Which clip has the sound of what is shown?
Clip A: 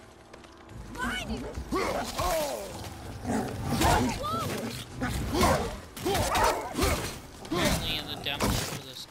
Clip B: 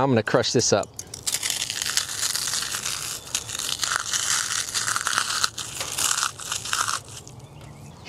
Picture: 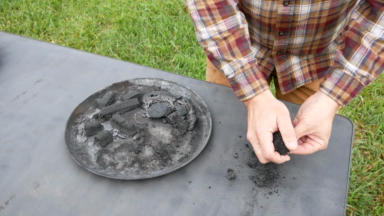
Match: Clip B